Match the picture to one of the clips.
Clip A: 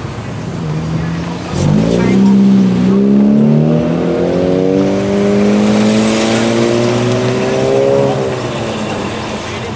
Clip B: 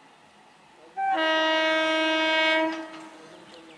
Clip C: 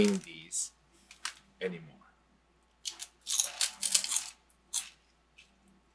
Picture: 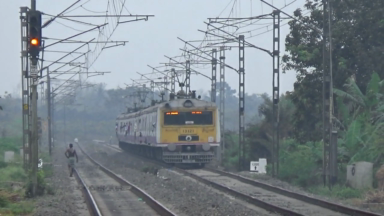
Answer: B